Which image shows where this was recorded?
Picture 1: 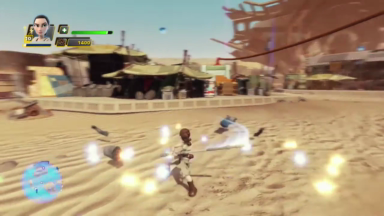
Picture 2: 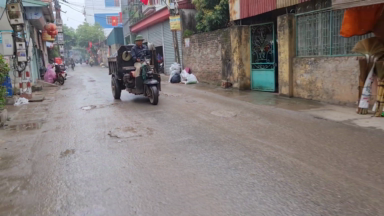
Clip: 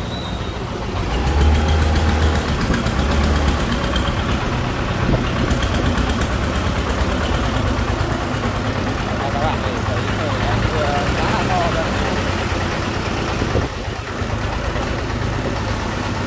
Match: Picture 2